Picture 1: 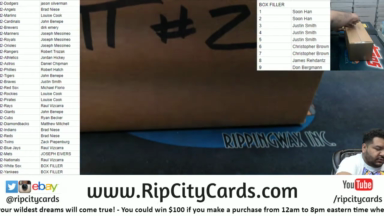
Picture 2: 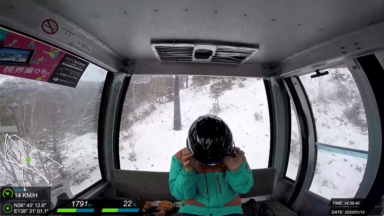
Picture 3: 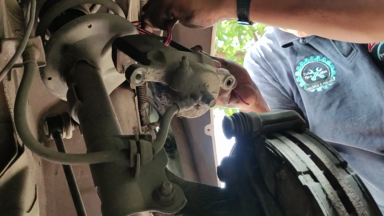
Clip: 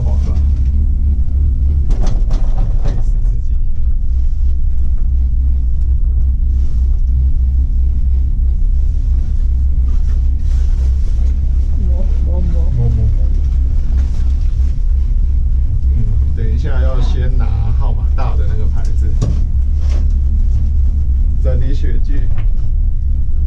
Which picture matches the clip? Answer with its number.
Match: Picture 2